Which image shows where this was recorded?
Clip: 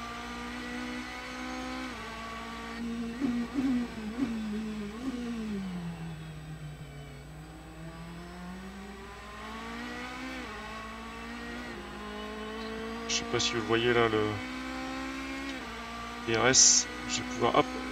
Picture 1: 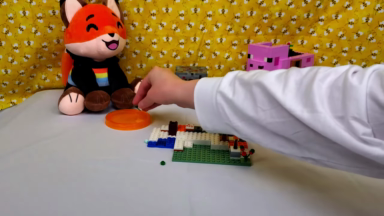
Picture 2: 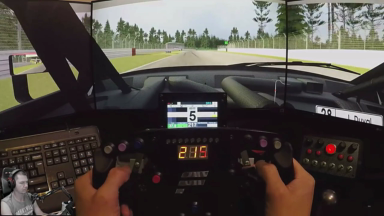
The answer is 2